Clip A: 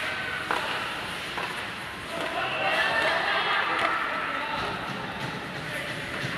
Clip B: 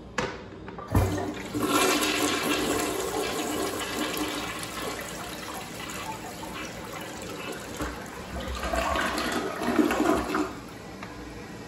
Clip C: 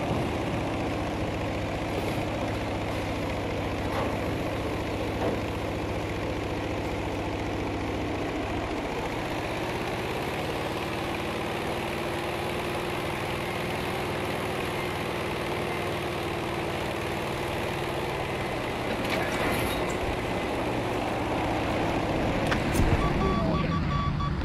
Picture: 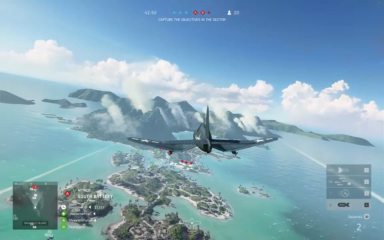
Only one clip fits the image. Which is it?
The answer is C